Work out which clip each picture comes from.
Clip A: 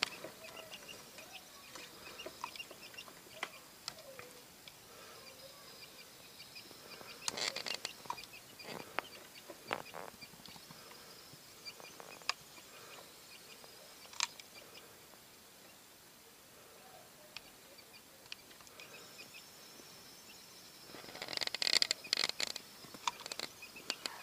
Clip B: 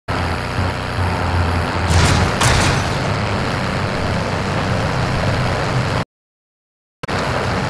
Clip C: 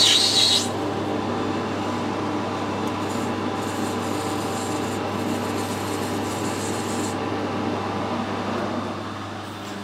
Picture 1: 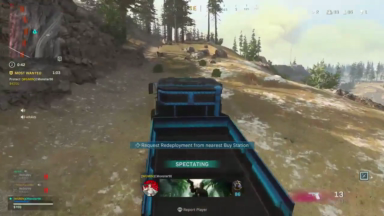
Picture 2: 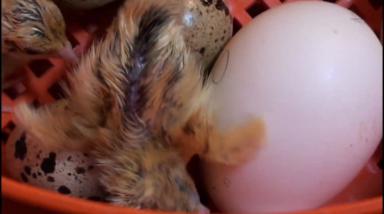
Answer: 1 B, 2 A